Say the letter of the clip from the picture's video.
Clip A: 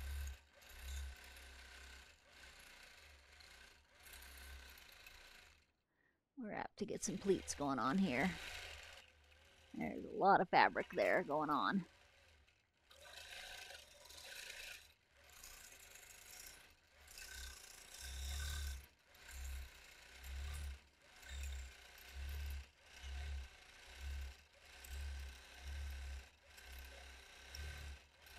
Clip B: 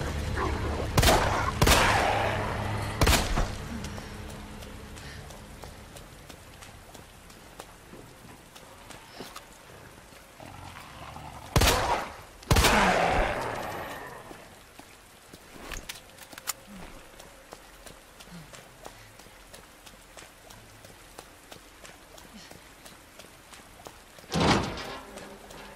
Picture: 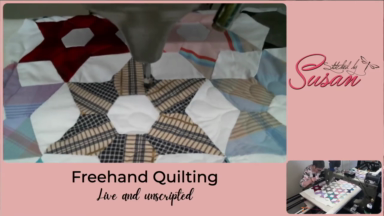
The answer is A